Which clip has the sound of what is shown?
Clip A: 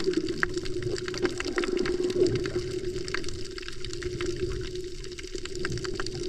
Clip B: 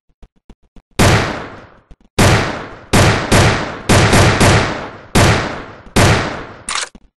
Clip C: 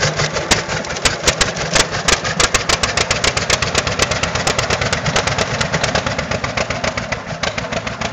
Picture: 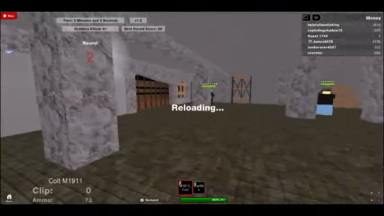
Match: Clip B